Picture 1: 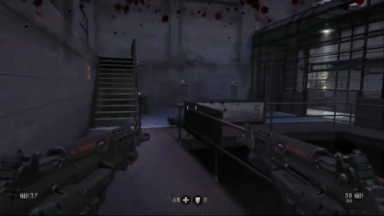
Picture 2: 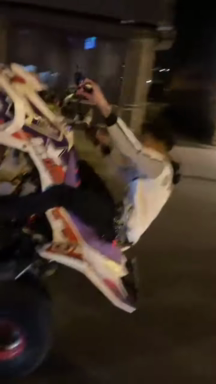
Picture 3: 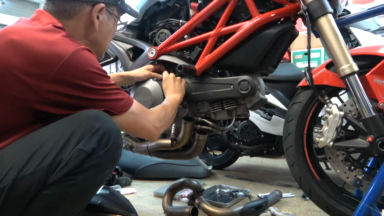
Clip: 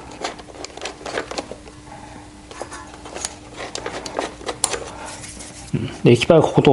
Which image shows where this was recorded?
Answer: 3